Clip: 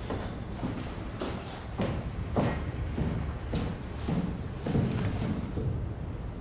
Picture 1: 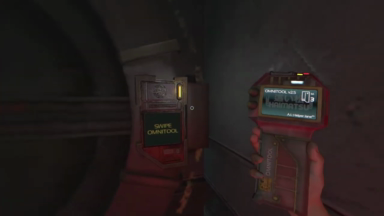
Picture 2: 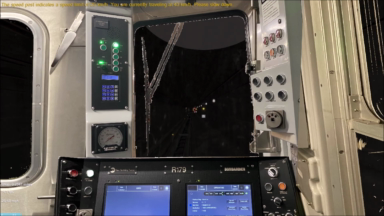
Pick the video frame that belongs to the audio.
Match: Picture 1